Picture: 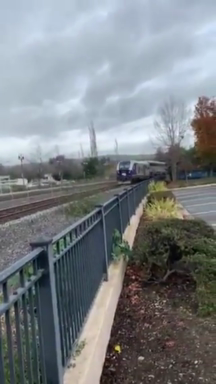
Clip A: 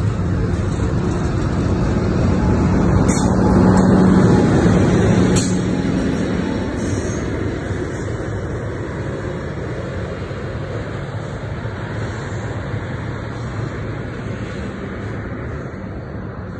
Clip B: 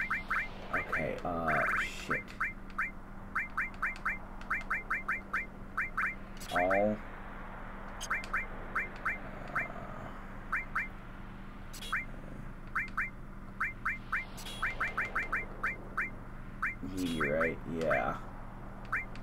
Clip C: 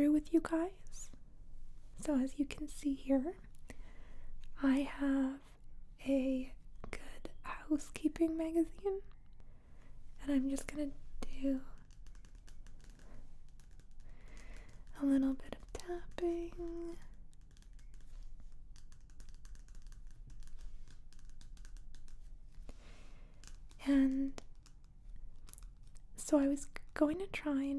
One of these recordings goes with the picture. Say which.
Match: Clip A